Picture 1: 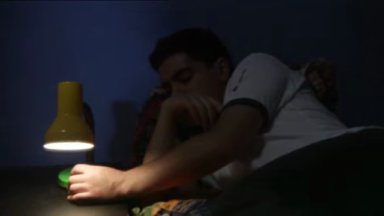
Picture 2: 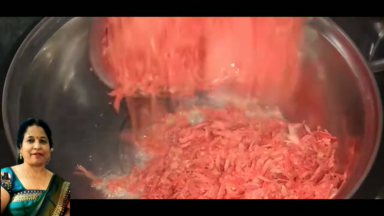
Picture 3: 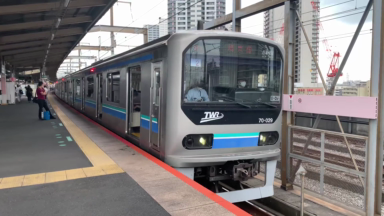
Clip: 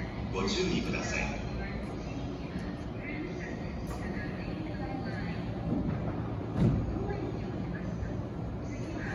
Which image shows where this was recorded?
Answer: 3